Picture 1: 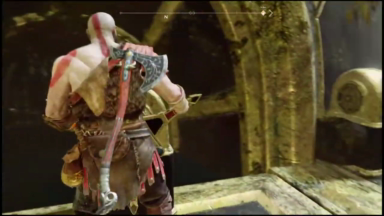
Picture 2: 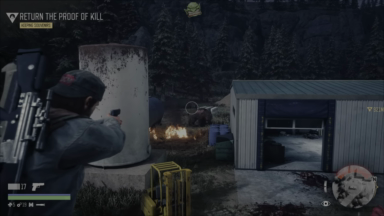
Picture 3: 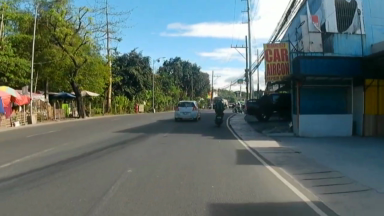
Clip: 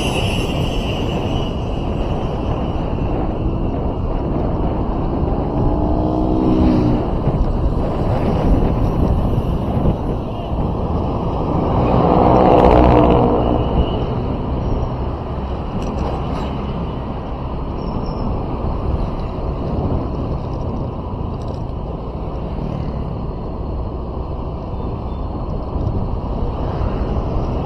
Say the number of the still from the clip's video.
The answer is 3